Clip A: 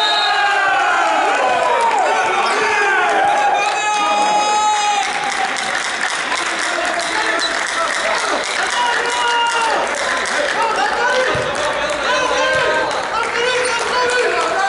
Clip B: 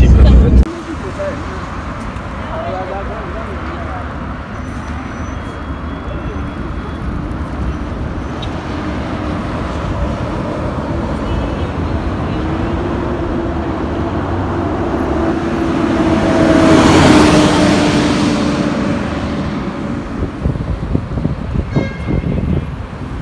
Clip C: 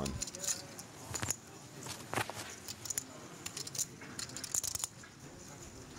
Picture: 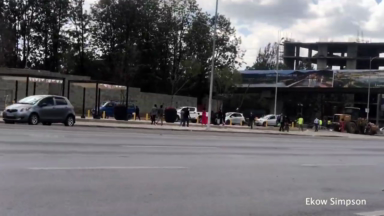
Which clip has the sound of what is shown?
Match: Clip B